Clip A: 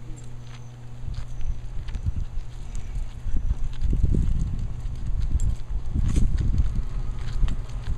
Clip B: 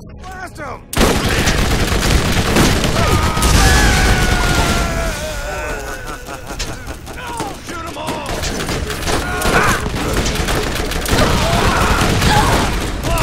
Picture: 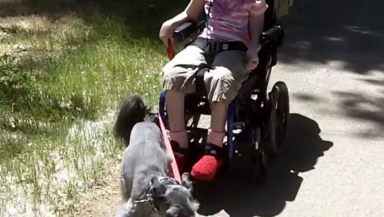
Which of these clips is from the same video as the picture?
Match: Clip A